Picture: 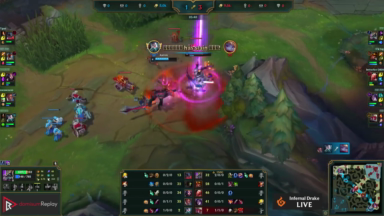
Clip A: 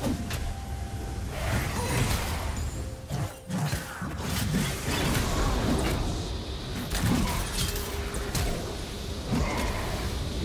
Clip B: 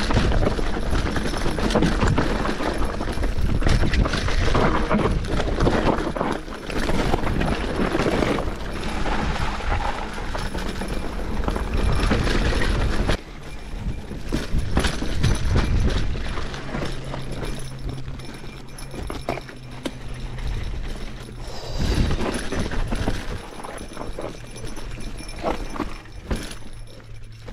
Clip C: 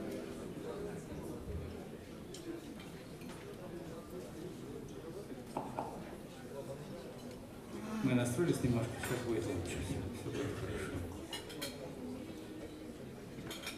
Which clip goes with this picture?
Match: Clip A